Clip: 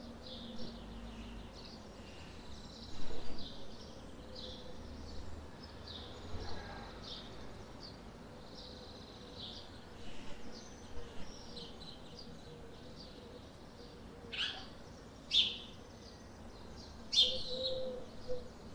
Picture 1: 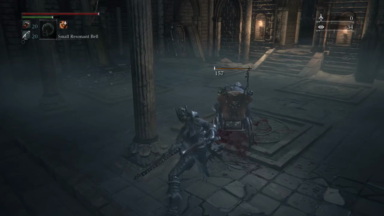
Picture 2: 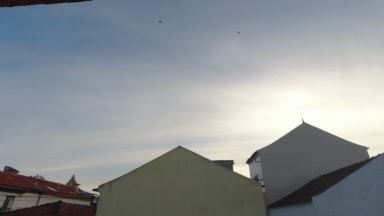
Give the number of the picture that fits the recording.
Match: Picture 2